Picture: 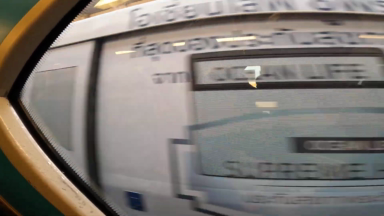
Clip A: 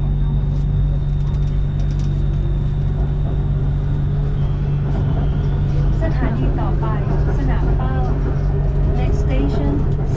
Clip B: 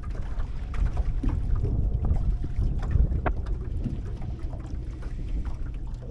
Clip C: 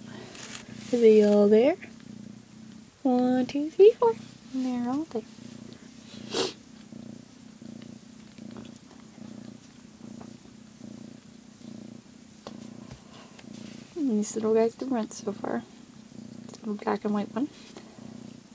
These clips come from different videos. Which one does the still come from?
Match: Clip A